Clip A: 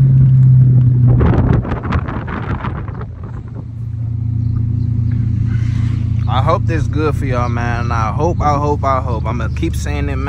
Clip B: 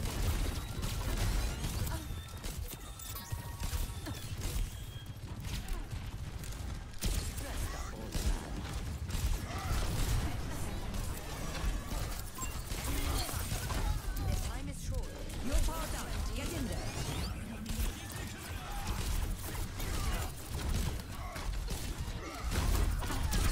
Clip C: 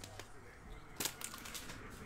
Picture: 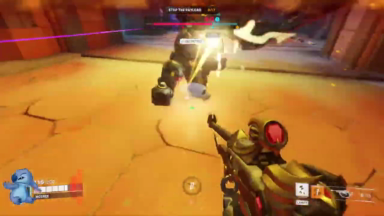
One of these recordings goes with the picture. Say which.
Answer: B